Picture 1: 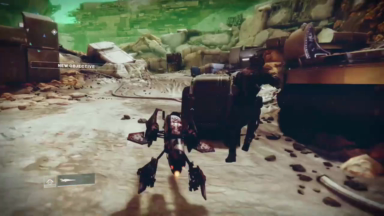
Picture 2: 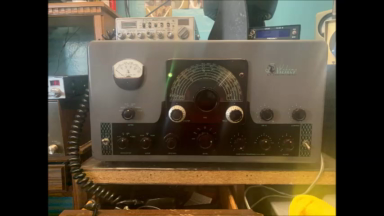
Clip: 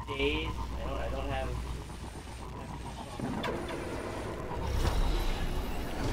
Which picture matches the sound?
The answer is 1